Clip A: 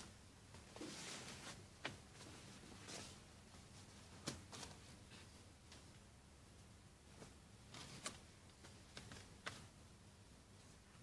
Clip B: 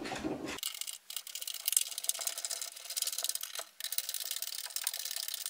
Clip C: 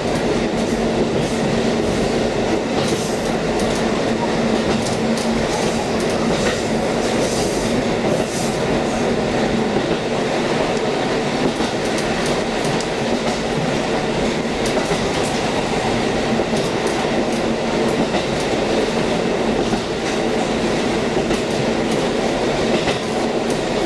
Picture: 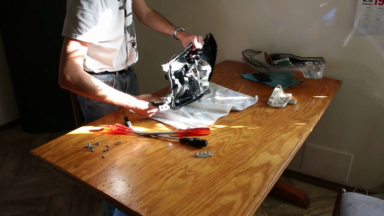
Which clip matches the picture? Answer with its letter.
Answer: B